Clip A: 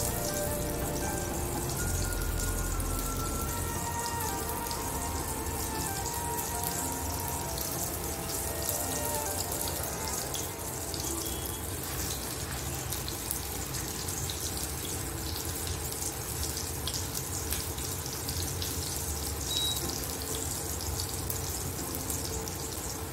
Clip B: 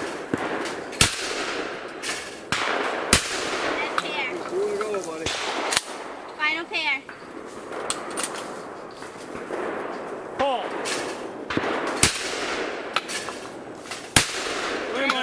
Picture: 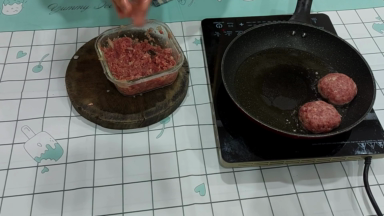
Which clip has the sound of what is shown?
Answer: A